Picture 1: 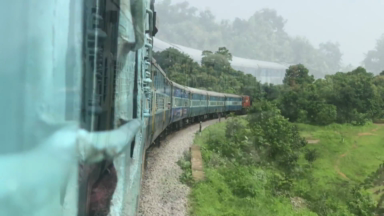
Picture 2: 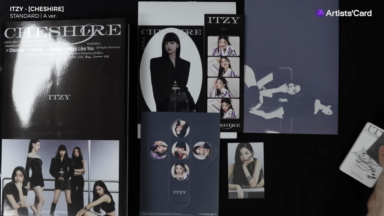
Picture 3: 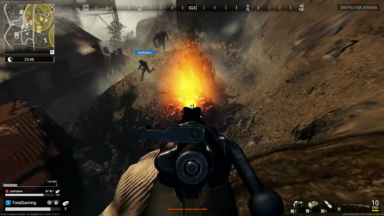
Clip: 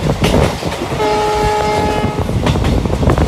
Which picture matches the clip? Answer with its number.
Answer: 1